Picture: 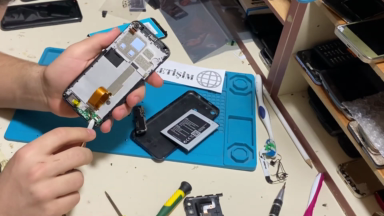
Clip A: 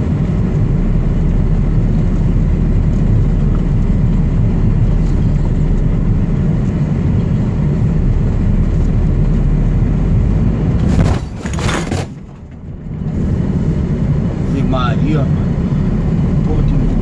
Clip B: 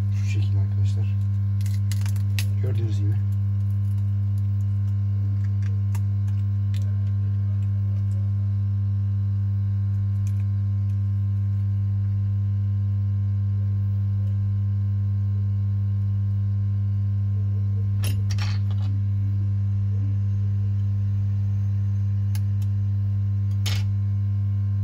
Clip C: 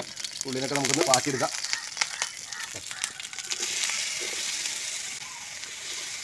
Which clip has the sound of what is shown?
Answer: B